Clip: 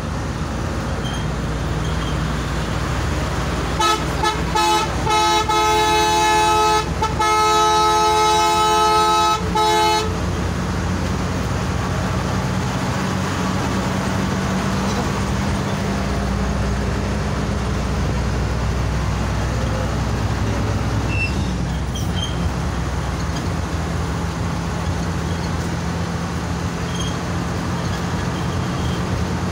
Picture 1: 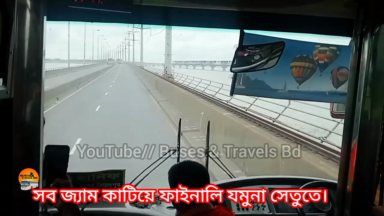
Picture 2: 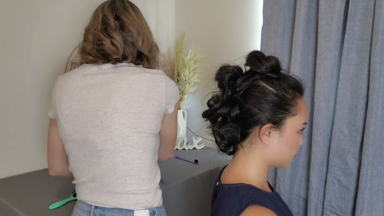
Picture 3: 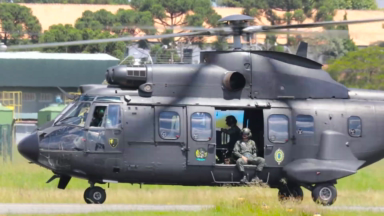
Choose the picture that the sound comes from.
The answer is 1